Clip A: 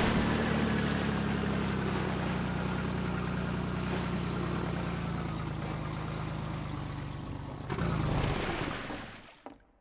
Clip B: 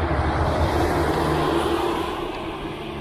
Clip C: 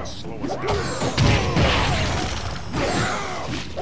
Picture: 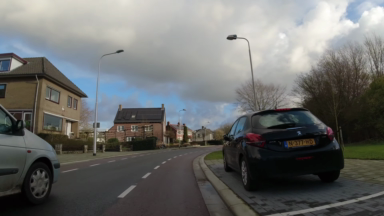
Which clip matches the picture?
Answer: B